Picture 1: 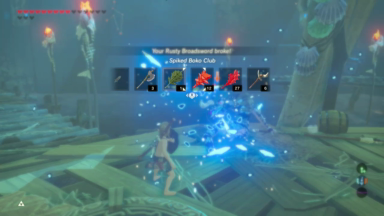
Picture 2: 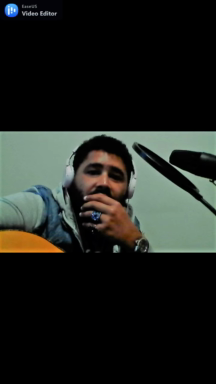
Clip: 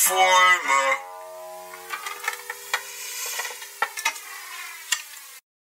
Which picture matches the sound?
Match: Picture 2